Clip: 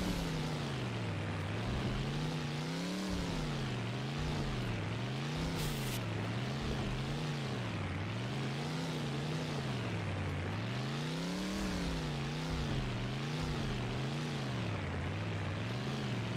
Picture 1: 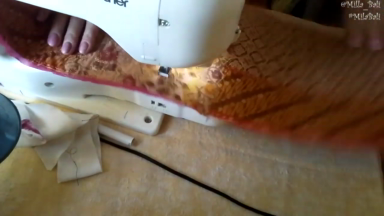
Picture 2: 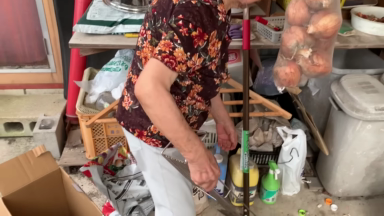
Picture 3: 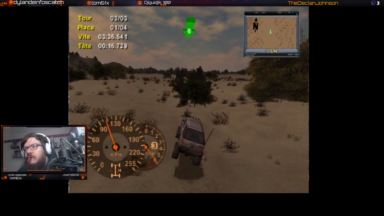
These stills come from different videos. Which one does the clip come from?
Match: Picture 3